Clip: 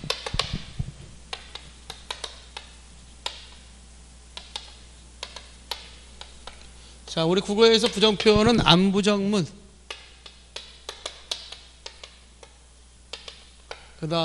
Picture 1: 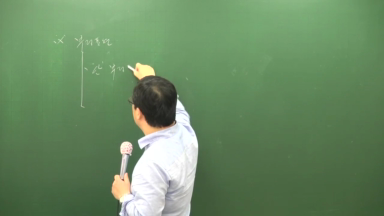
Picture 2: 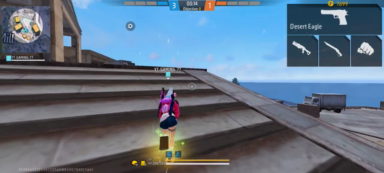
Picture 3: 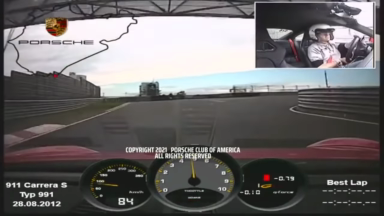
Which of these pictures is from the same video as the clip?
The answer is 1